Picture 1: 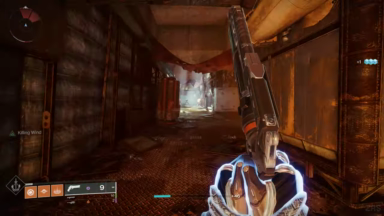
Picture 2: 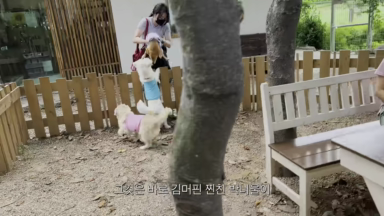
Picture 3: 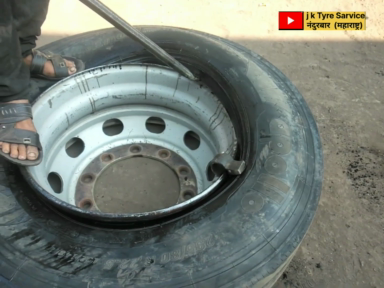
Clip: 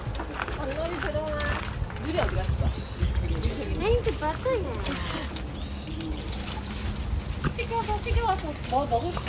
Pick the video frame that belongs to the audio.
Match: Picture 2